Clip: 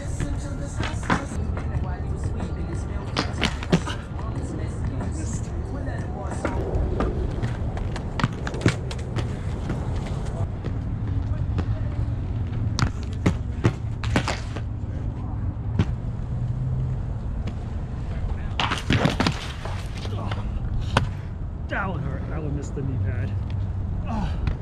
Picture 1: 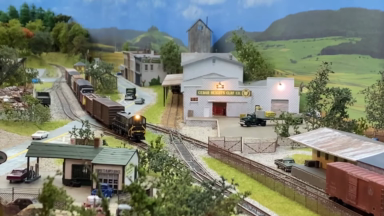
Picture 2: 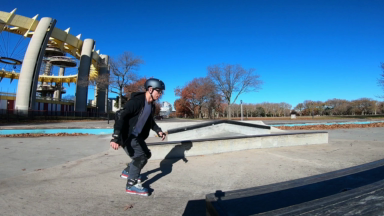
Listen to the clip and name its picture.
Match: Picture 2